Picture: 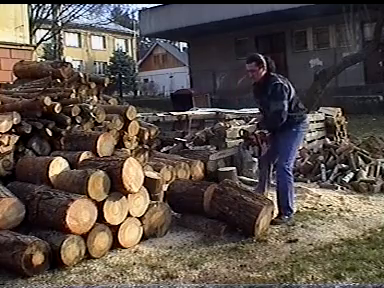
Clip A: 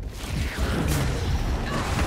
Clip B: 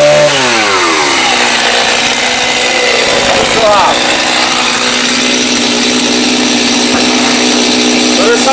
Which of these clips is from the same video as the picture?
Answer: B